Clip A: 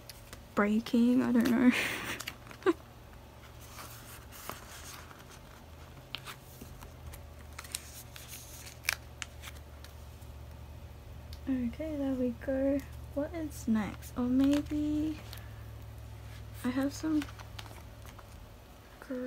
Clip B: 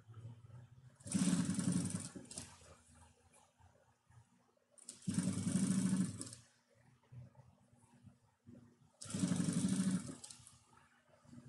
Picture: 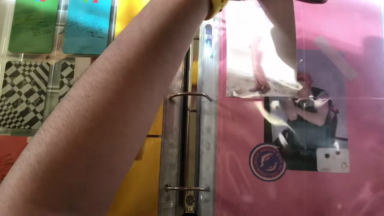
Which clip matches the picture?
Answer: A